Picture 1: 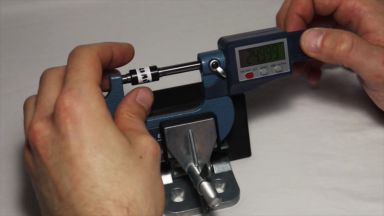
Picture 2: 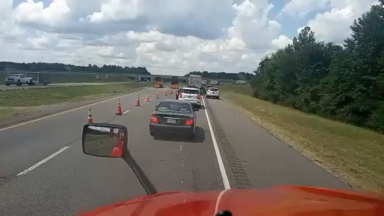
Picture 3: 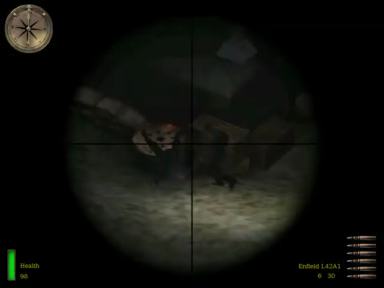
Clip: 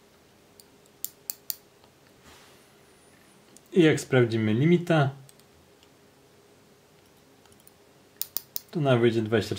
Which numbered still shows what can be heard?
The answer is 1